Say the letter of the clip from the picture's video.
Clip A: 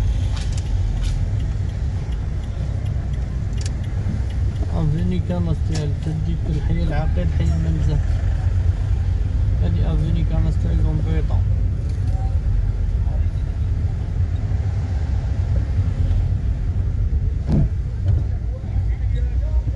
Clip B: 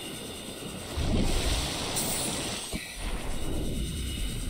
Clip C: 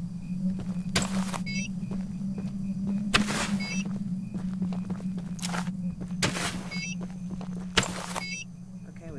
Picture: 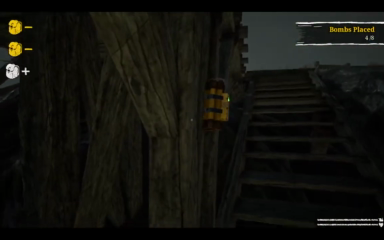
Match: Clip C